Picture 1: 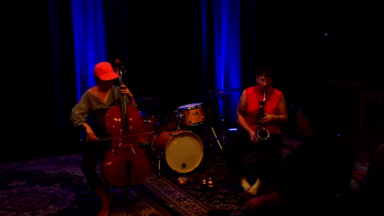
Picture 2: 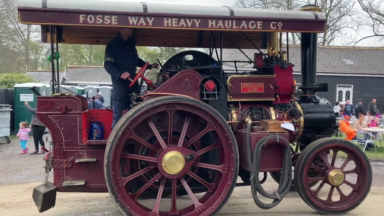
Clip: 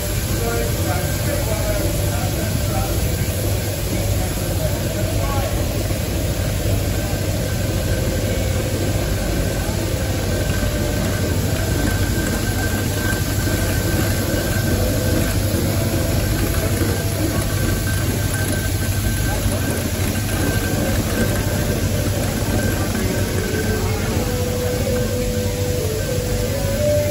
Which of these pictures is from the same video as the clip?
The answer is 2